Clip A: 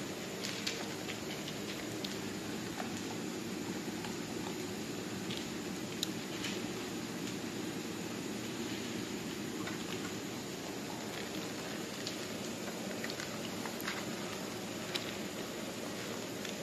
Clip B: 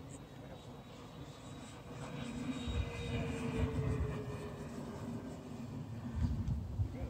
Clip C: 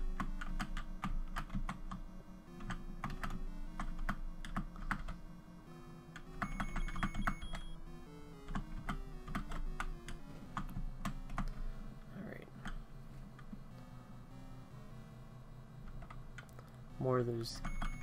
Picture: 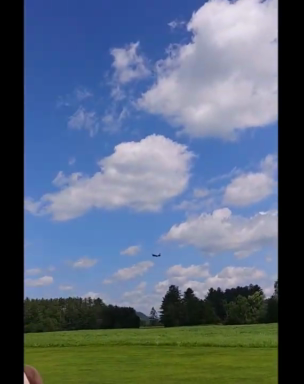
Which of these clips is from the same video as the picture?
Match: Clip B